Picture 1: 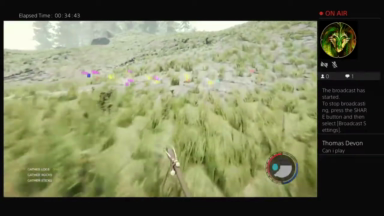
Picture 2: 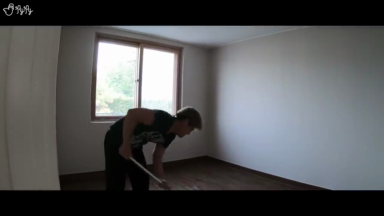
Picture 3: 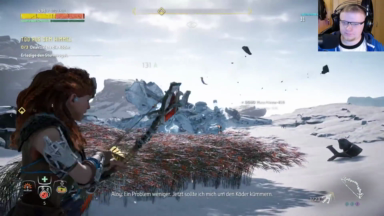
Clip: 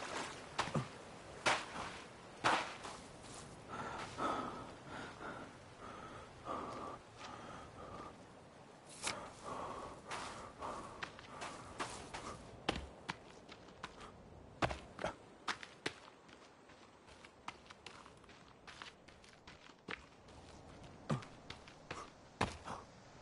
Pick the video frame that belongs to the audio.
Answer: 1